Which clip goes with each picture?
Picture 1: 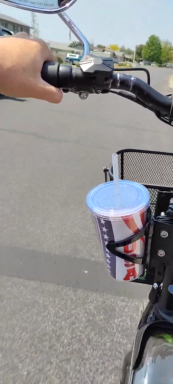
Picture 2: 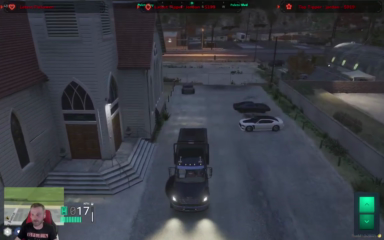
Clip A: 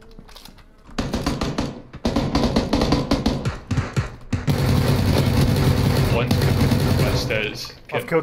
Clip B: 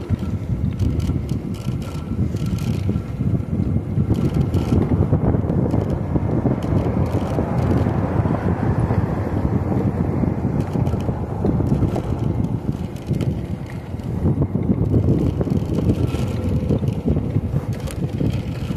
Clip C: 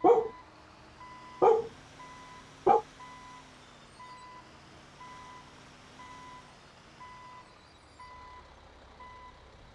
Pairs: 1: B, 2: C